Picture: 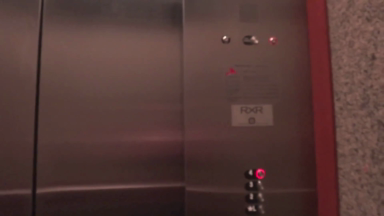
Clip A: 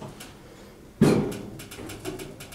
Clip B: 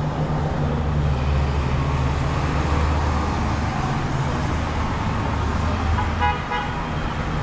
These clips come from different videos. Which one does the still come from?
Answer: A